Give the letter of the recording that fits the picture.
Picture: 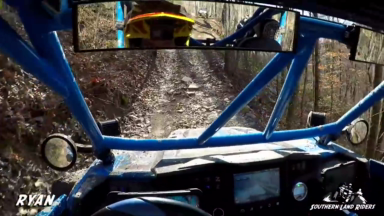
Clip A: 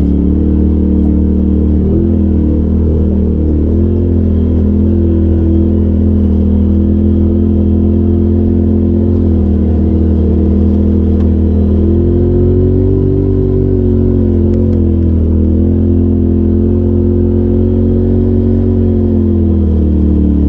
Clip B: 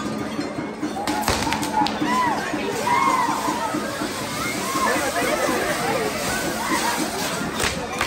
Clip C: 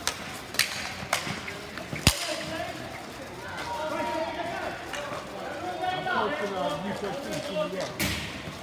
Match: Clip A